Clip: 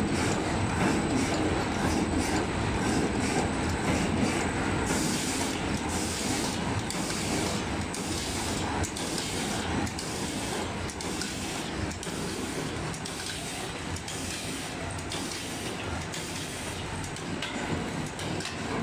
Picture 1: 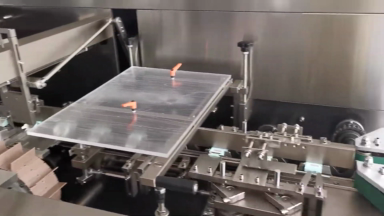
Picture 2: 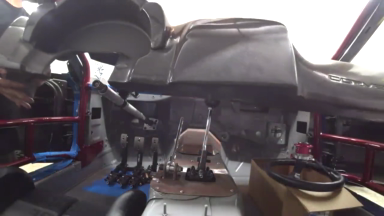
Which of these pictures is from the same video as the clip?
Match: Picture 1